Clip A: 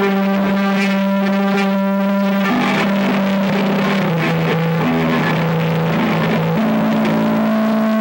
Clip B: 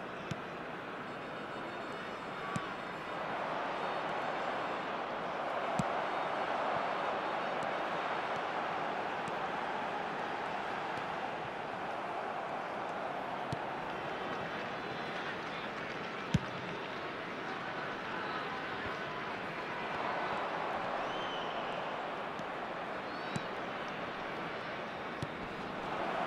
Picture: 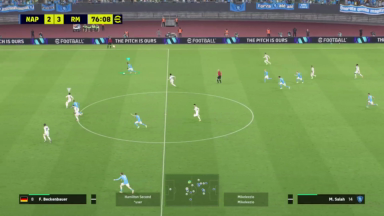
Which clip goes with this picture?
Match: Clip B